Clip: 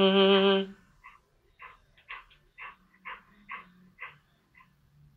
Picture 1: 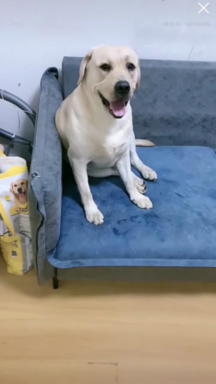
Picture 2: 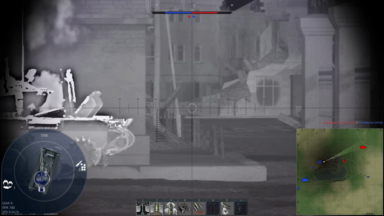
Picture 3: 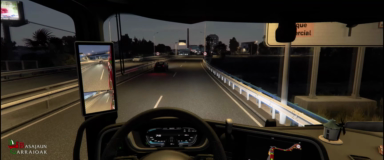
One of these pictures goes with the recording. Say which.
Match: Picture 1